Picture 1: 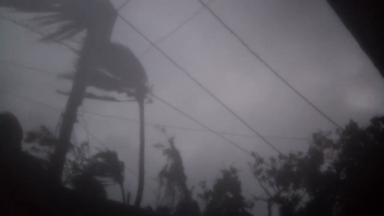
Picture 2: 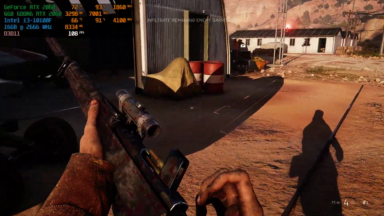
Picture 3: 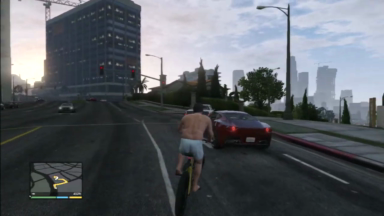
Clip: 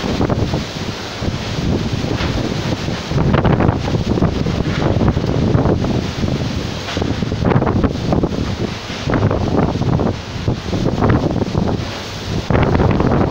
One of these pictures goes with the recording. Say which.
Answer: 1